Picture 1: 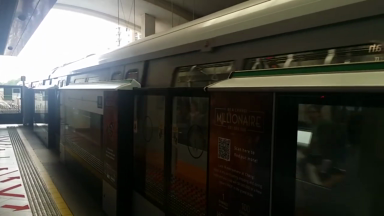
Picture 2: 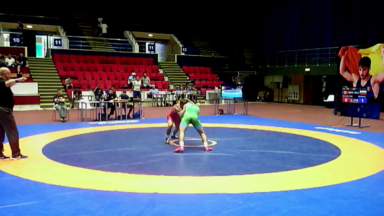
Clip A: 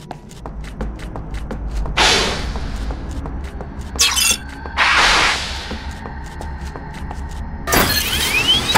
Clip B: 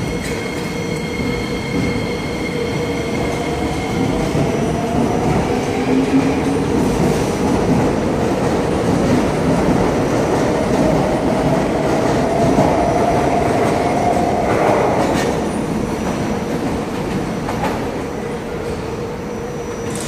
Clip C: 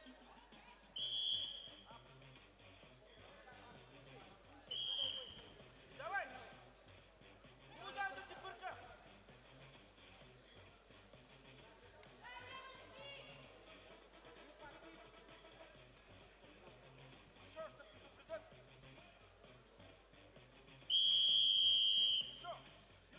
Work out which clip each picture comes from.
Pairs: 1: B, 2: C